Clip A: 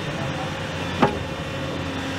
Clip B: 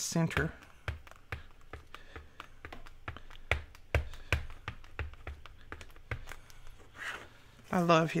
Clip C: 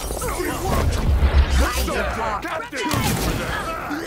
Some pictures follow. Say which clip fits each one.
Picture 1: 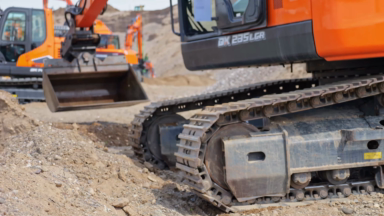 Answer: A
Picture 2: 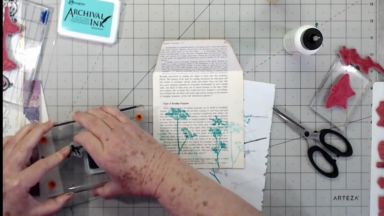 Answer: B